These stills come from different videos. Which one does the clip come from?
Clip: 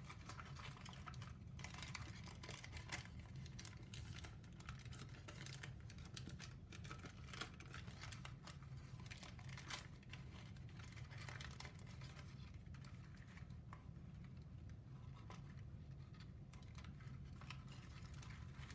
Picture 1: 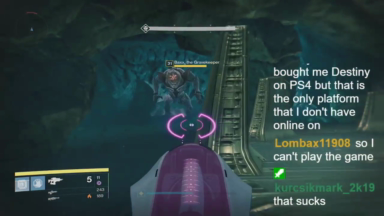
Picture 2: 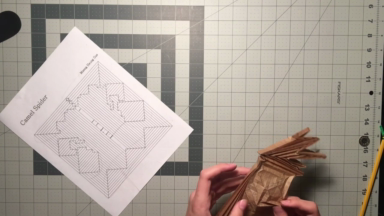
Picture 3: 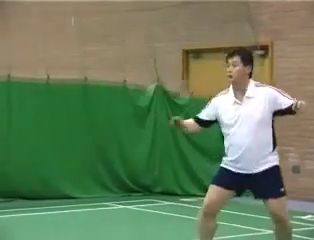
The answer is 2